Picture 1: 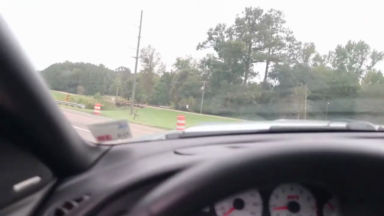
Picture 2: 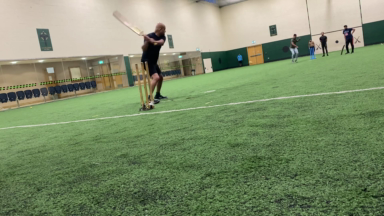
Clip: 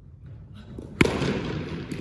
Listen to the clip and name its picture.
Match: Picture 2